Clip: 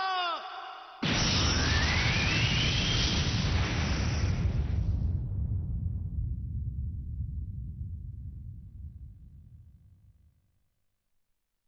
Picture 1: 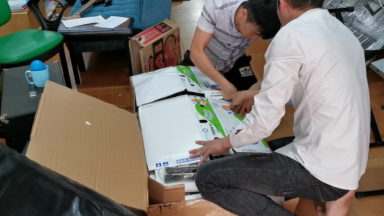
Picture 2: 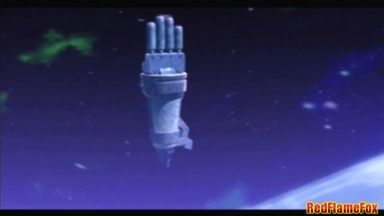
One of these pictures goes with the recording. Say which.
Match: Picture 2